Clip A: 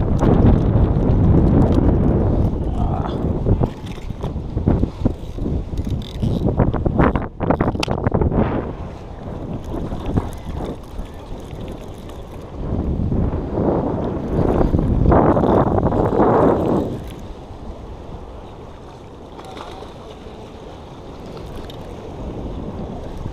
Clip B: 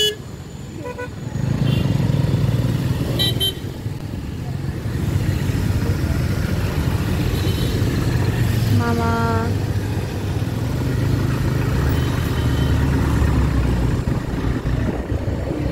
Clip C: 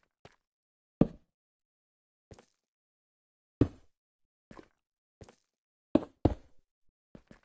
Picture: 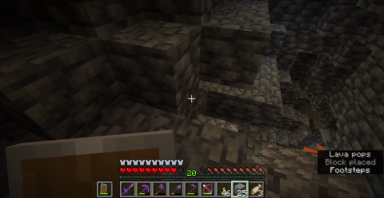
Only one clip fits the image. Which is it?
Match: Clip C